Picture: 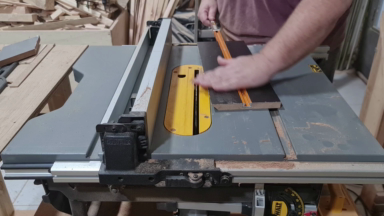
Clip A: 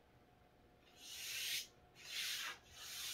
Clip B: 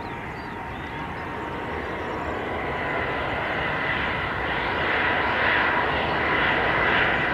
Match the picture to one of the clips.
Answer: A